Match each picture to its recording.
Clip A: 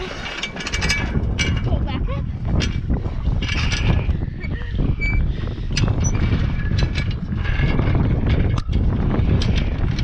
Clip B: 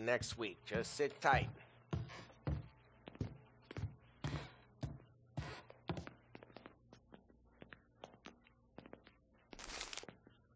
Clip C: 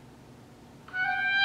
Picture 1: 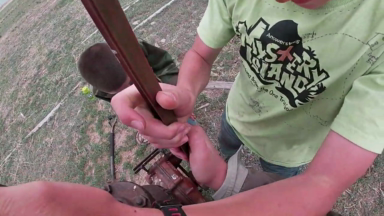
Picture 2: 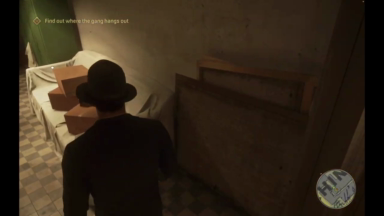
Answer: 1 A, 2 B